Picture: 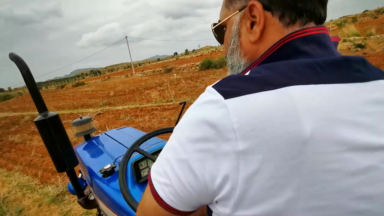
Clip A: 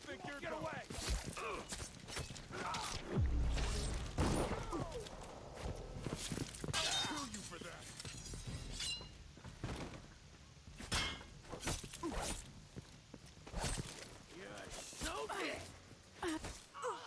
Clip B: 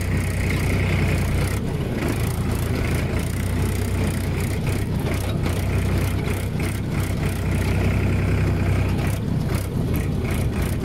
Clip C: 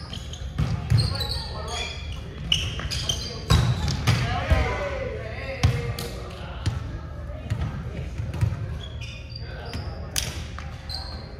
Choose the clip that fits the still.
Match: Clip B